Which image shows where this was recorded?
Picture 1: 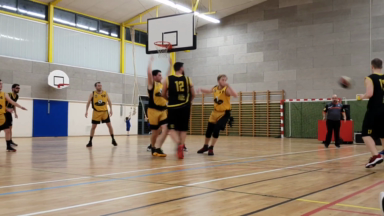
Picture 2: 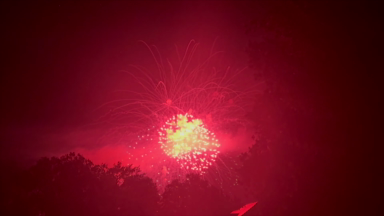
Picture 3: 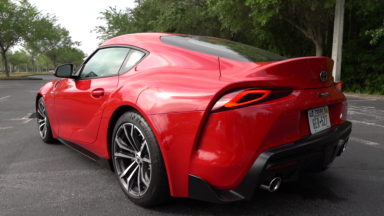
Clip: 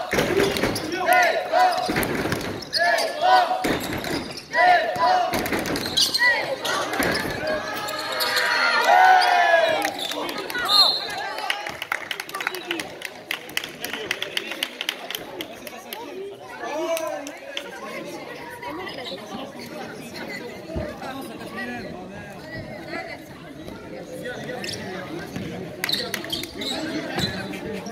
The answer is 1